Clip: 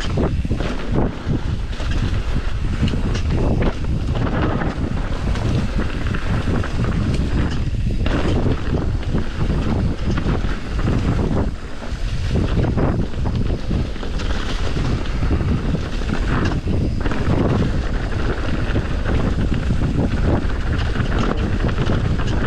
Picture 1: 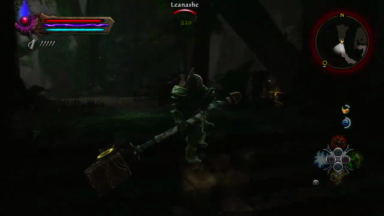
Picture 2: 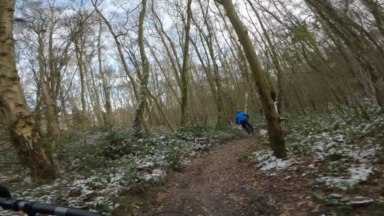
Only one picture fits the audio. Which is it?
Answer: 2